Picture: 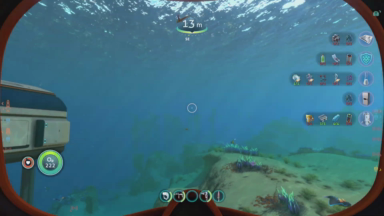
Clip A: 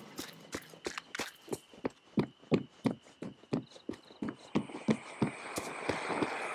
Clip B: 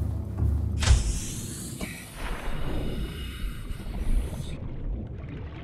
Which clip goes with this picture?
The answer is B